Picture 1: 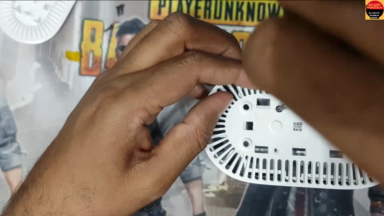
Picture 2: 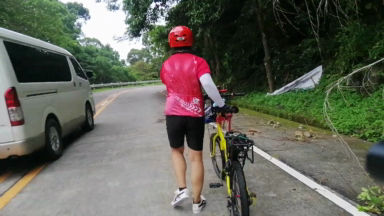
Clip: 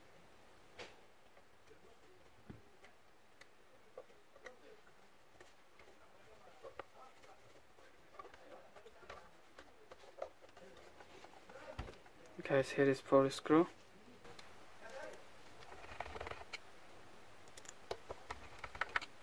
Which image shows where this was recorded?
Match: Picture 1